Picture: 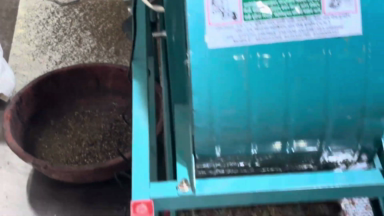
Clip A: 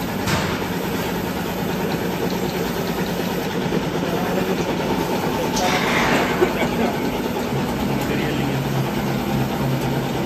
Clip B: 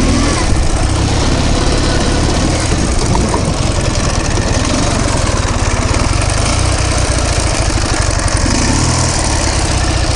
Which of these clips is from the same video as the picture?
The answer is A